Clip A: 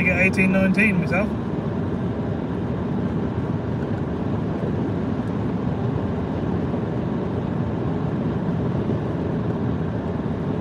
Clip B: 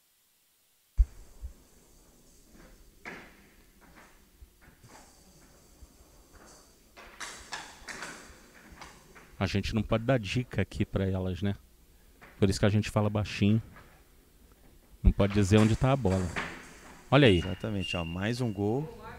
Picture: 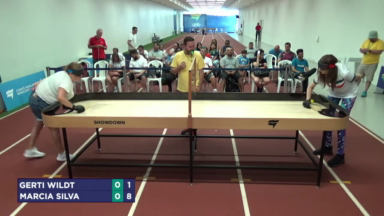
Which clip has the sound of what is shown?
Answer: B